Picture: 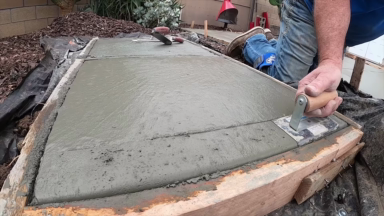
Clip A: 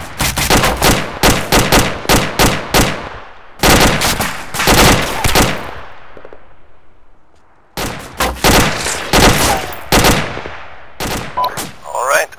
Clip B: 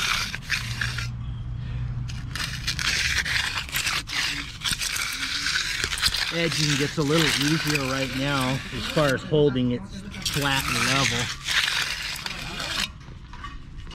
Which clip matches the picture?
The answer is B